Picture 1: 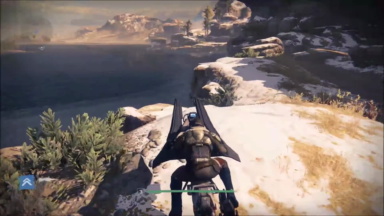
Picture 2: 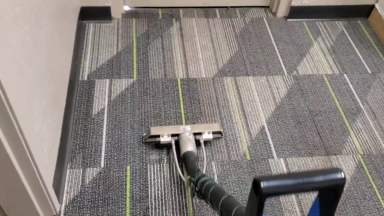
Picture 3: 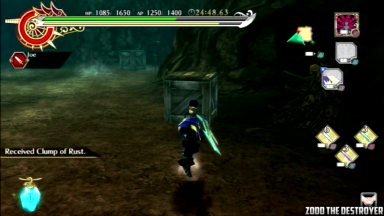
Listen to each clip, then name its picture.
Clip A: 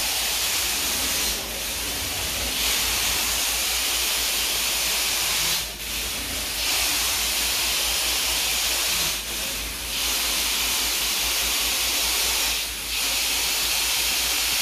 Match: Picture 2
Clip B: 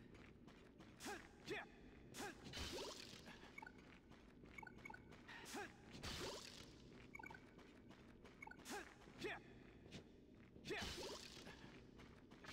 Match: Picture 3